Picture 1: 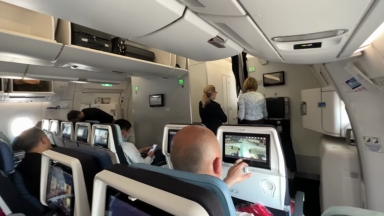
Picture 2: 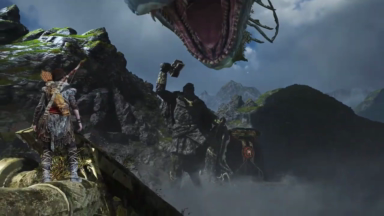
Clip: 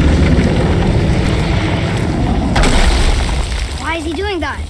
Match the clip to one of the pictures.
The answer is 2